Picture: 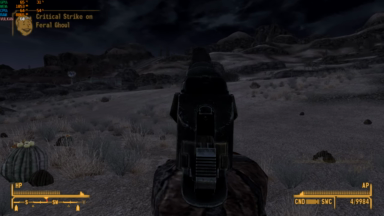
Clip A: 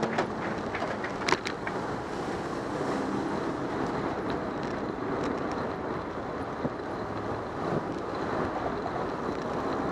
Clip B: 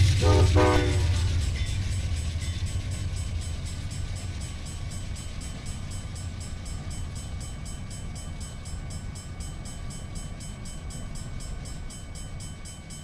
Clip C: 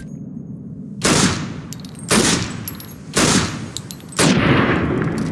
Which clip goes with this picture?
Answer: C